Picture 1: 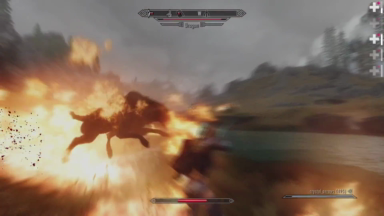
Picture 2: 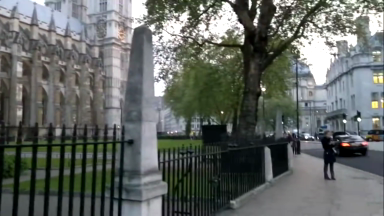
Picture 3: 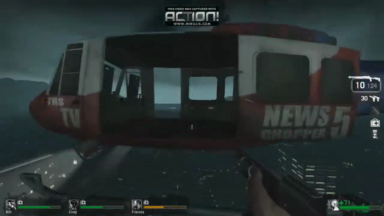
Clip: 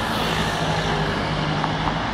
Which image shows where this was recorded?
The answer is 2